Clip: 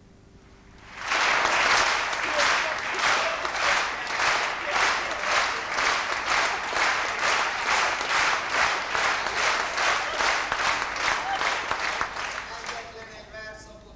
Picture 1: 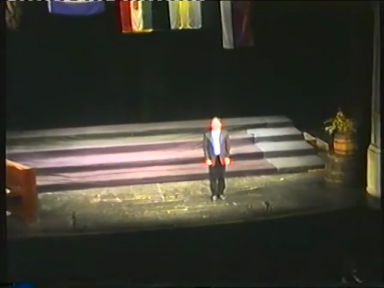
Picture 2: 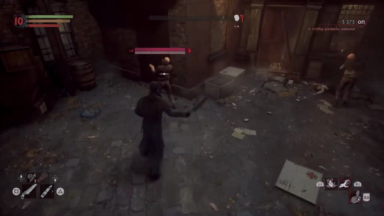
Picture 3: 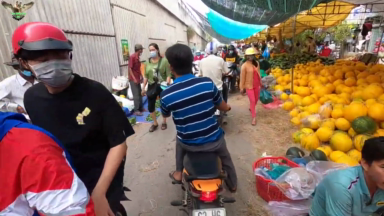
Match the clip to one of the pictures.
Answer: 1